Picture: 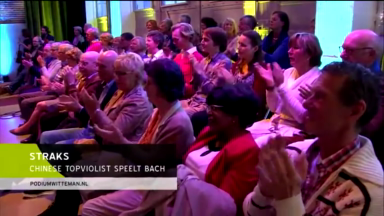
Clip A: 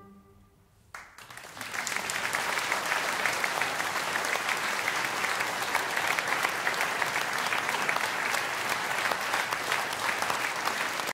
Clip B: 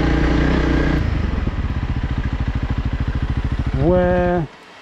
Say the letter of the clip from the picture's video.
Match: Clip A